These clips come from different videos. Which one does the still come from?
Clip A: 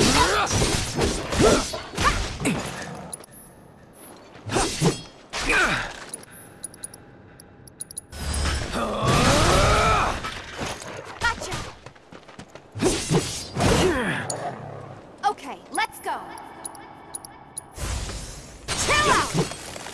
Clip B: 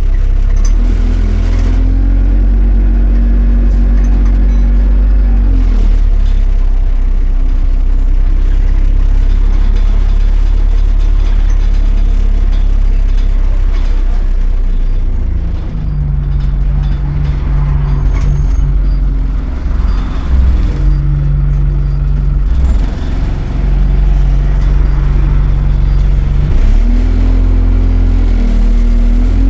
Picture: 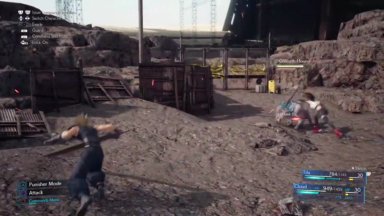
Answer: A